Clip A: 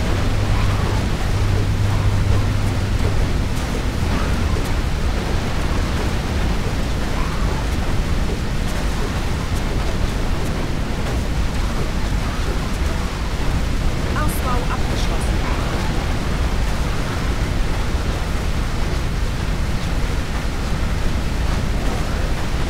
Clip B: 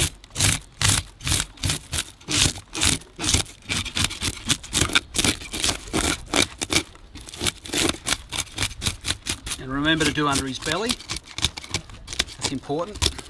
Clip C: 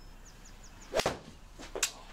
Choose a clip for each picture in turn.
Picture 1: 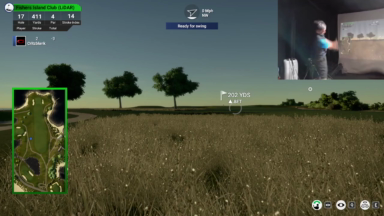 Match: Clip C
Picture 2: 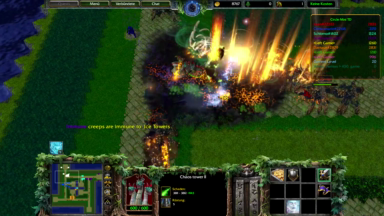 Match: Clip A